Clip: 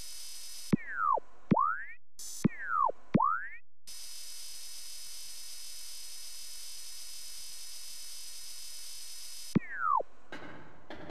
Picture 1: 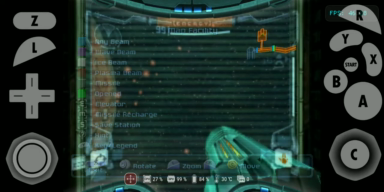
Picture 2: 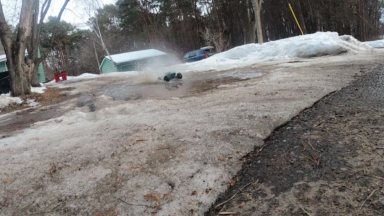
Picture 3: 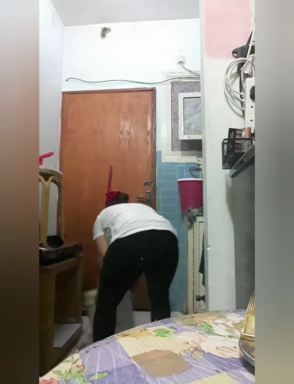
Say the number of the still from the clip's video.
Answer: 1